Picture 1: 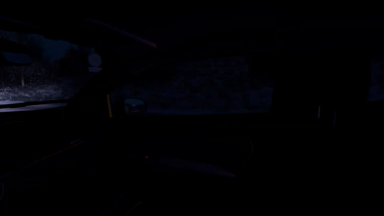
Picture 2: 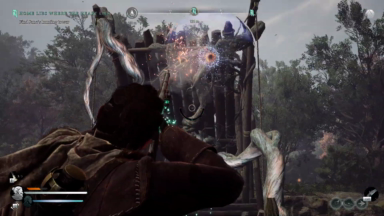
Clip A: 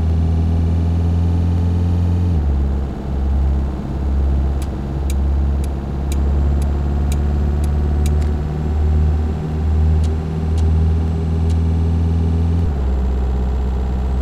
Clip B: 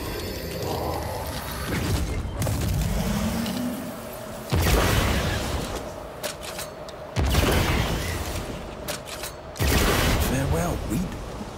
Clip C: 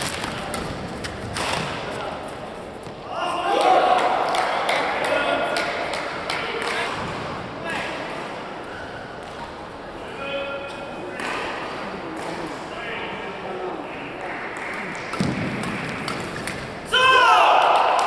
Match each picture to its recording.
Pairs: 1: A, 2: B